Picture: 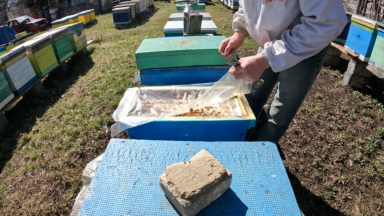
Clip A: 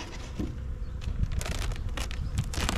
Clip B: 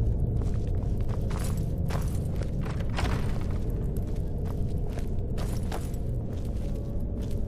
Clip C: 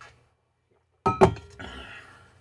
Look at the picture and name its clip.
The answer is A